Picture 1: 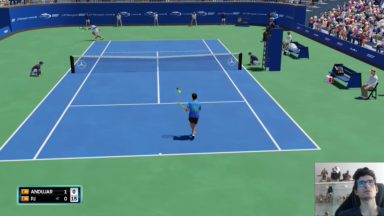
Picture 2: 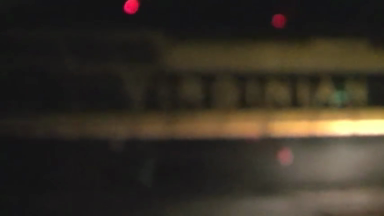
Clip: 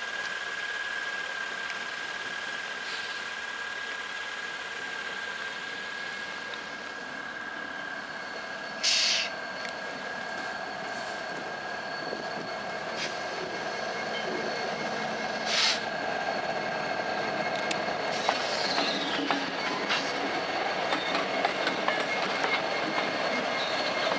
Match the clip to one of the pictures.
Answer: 2